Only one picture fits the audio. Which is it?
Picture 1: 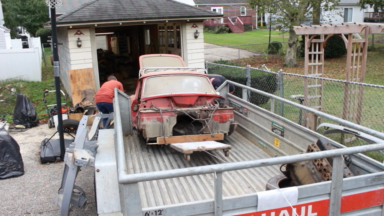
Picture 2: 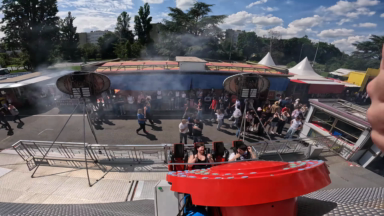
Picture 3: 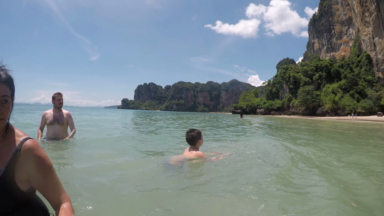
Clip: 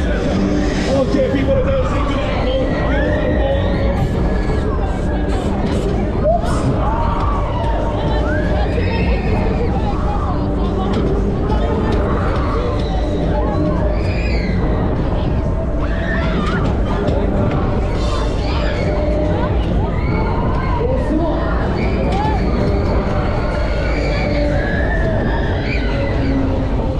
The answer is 2